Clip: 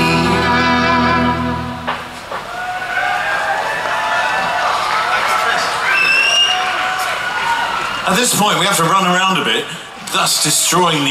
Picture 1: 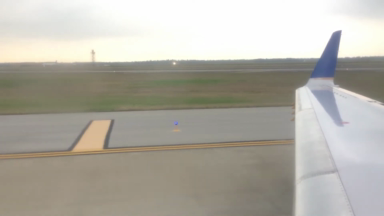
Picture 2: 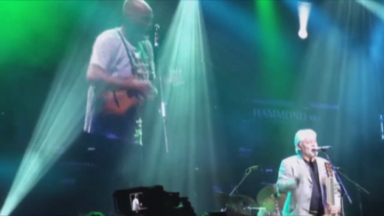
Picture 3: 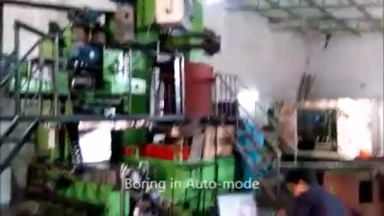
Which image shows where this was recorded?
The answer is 2